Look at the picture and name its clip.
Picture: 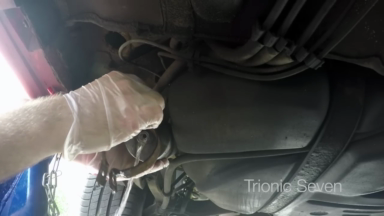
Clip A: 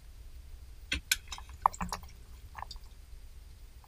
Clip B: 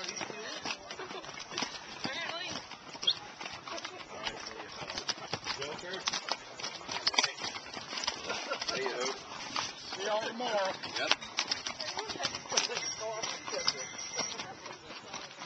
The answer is A